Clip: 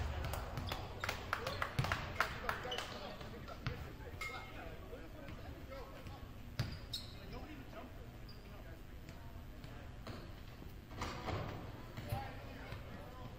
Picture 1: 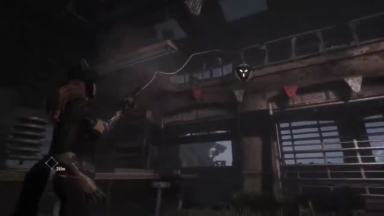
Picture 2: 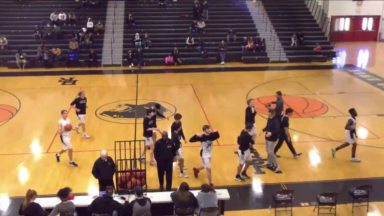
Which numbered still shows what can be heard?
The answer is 2